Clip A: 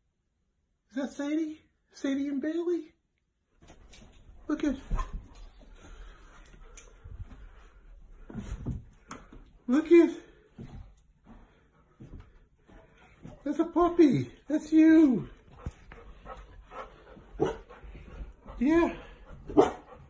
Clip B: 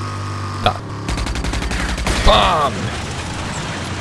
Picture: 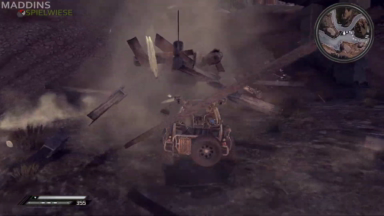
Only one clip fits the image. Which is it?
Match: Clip B